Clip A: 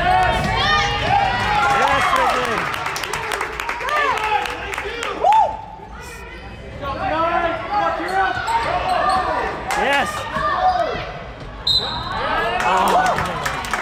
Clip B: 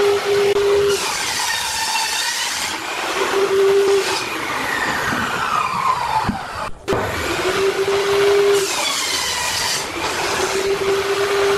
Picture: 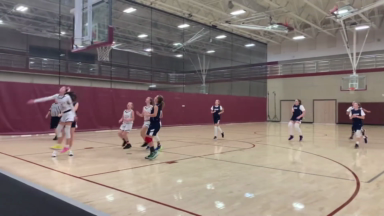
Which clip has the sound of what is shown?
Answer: A